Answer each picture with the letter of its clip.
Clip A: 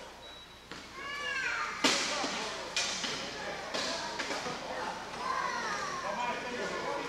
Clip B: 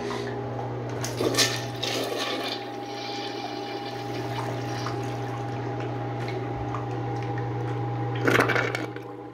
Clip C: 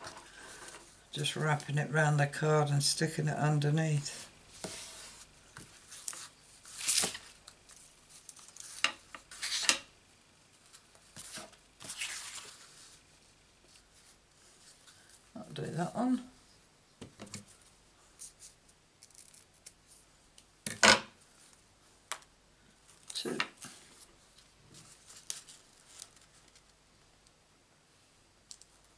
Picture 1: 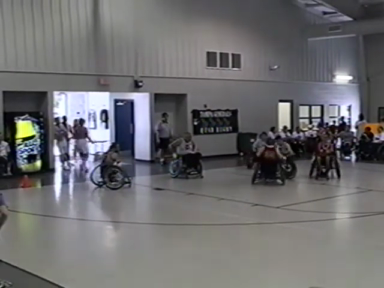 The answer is A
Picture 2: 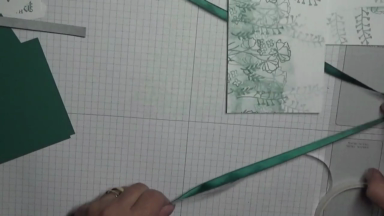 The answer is C